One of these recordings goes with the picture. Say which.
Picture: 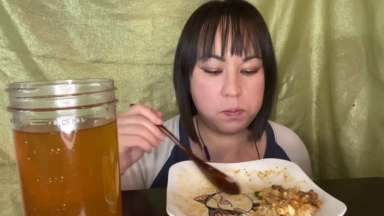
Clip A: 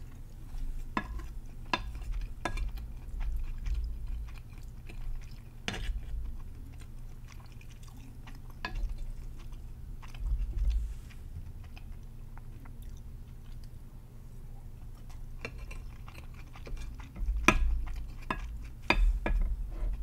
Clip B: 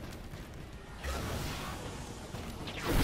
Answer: A